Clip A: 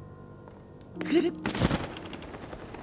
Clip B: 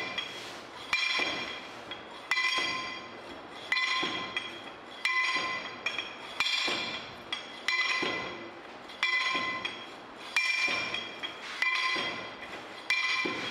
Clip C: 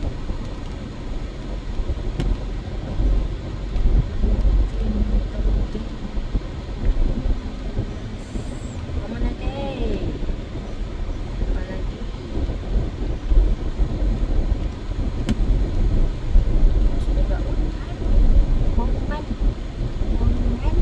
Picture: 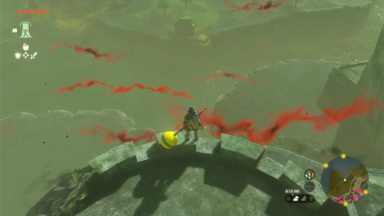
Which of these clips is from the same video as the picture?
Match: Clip A